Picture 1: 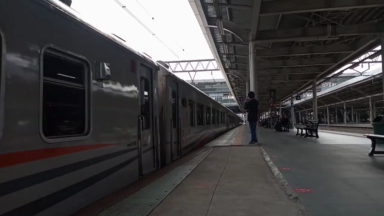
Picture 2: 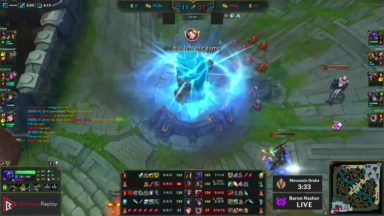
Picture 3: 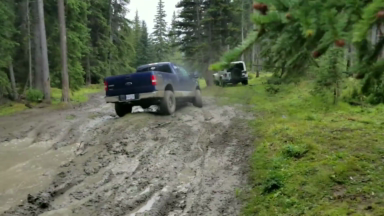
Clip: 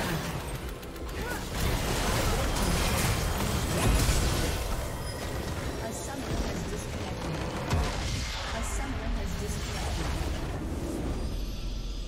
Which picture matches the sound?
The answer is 2